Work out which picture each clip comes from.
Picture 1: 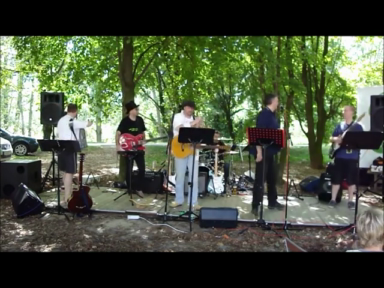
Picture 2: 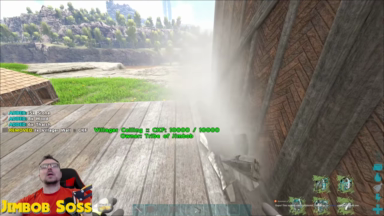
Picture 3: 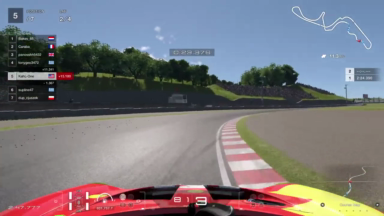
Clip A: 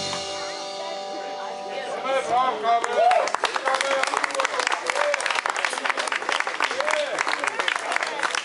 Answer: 1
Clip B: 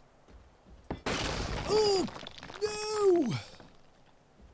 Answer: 2